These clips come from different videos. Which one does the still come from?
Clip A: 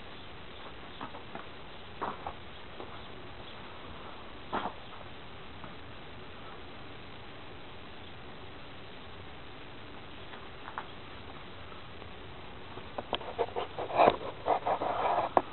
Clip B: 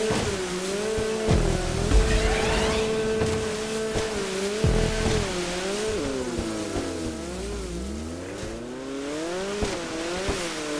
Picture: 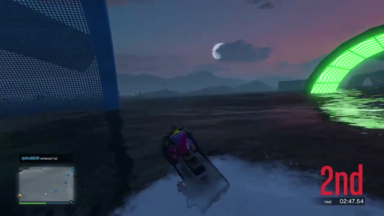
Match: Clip B